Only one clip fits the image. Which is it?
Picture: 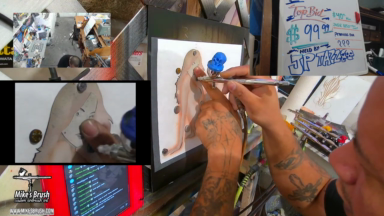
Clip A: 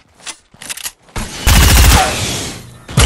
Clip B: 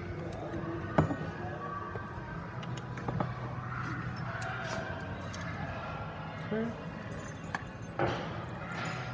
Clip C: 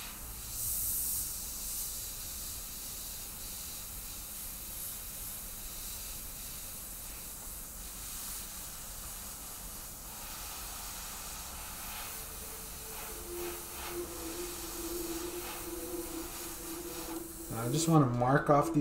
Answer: C